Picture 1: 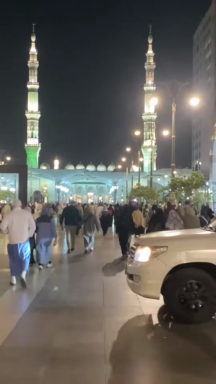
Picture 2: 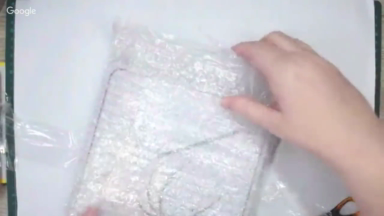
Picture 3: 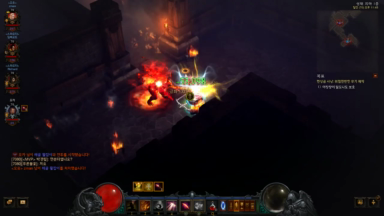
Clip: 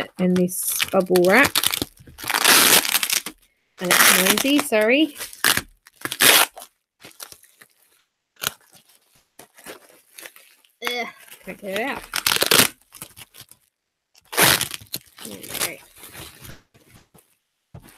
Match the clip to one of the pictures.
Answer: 2